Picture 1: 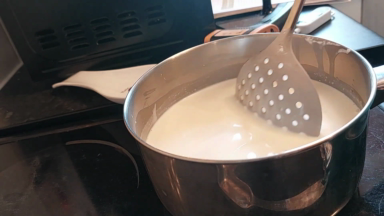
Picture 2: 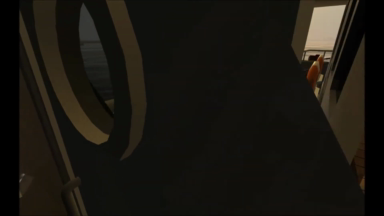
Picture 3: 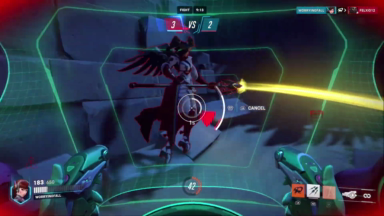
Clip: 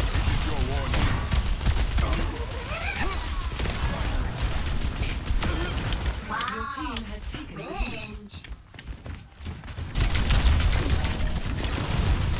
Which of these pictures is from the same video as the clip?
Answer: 3